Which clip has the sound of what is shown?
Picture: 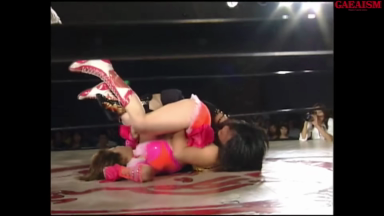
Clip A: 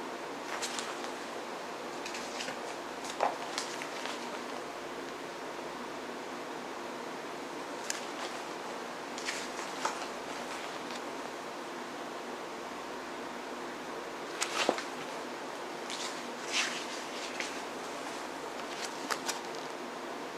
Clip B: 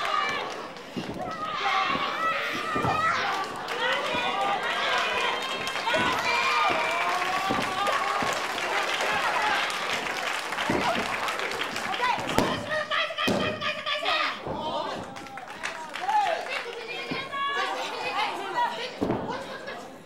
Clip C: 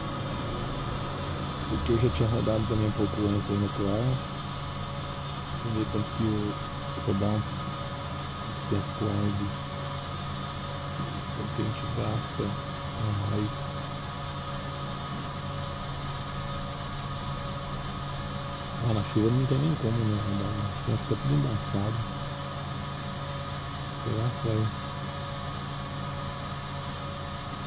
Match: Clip B